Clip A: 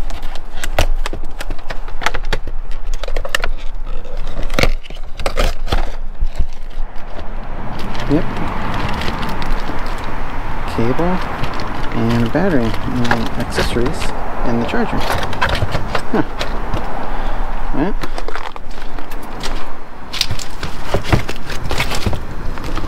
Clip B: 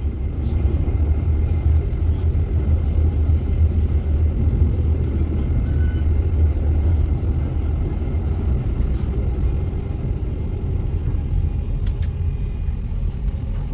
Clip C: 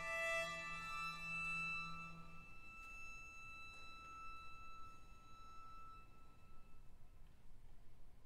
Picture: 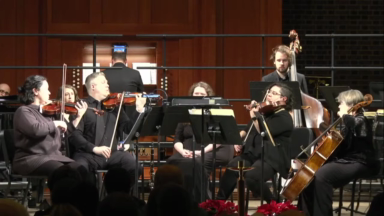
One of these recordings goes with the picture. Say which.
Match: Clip C